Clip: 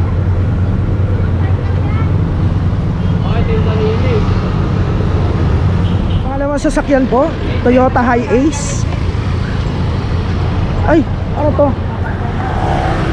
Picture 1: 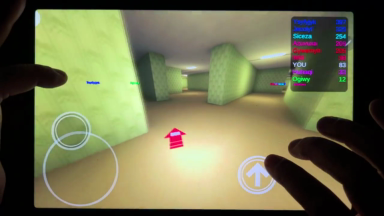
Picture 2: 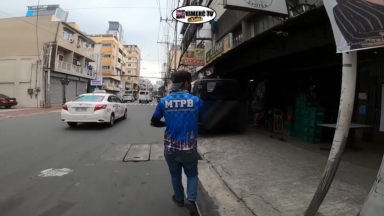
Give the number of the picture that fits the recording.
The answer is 2